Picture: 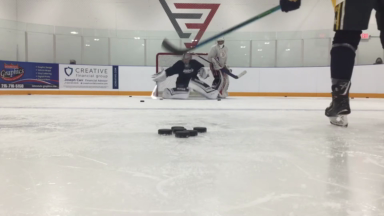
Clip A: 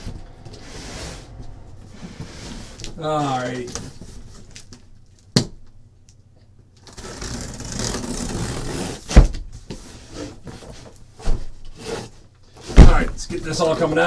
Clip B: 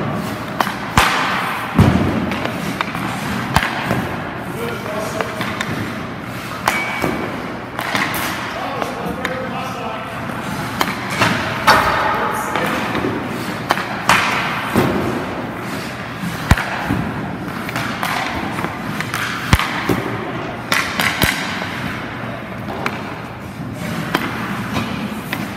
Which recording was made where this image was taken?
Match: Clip B